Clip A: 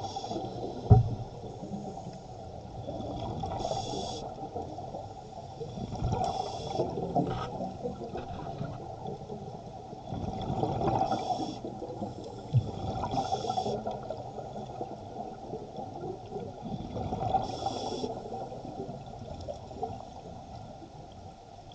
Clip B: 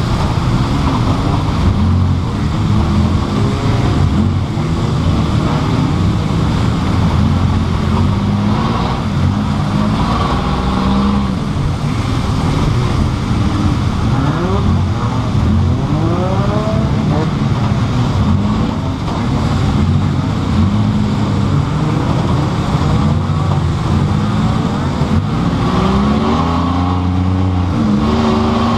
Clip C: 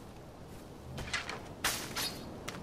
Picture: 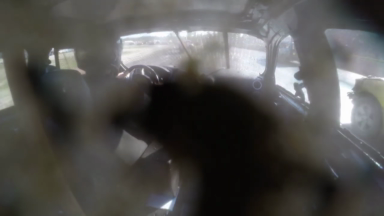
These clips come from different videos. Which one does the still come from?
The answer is B